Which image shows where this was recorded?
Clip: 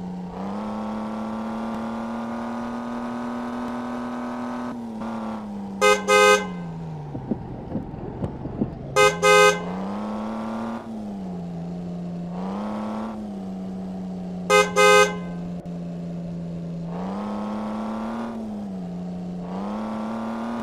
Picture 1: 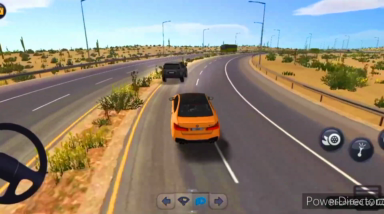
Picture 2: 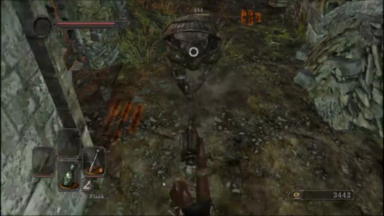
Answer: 1